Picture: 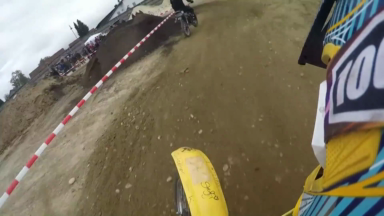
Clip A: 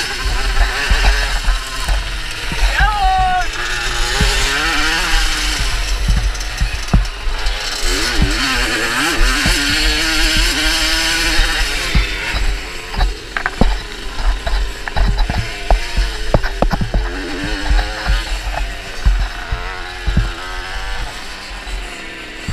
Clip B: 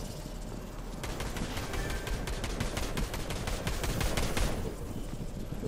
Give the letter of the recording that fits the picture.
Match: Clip A